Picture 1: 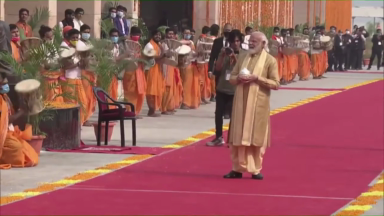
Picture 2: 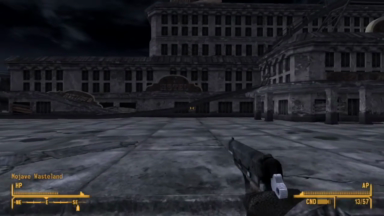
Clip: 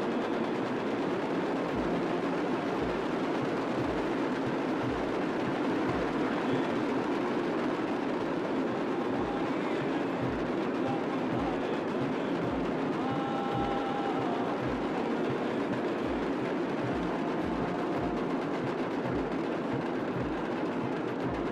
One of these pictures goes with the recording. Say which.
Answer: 1